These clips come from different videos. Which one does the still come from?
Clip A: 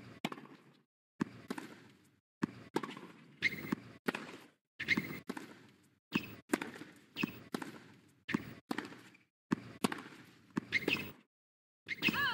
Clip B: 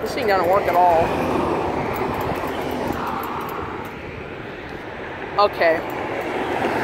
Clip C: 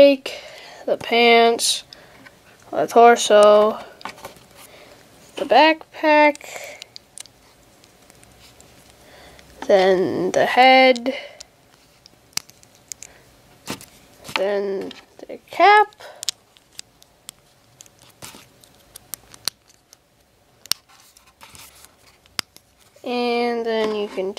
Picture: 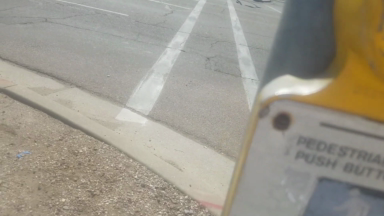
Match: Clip B